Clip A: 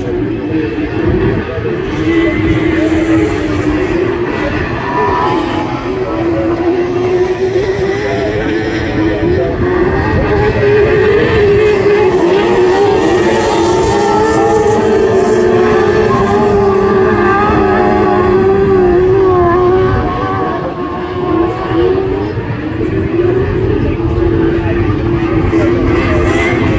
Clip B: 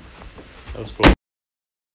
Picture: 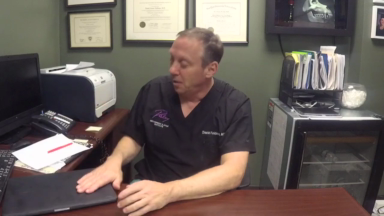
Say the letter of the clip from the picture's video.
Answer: B